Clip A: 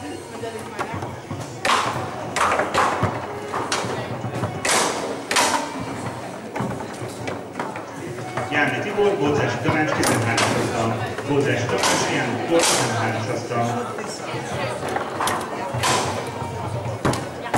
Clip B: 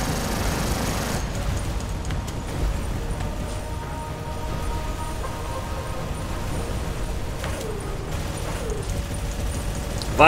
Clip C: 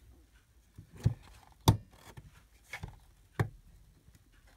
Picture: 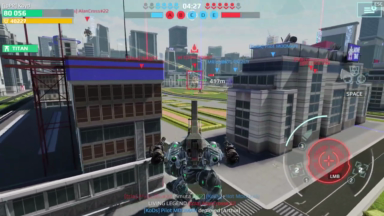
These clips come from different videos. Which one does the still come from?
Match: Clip B